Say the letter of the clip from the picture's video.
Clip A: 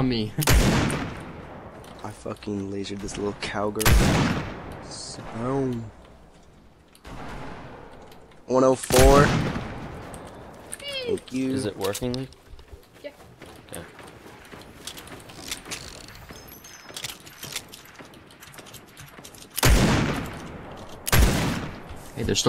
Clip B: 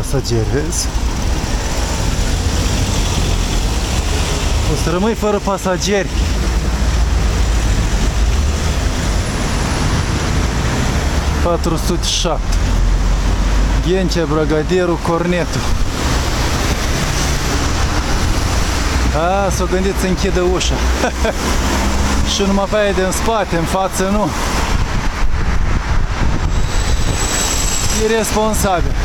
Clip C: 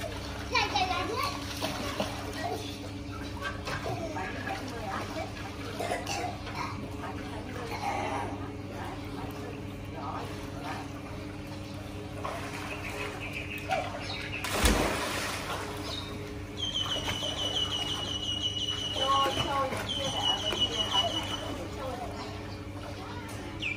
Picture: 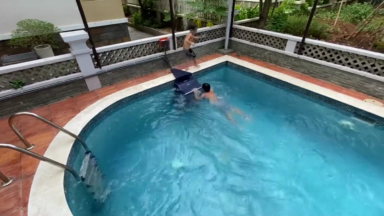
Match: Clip C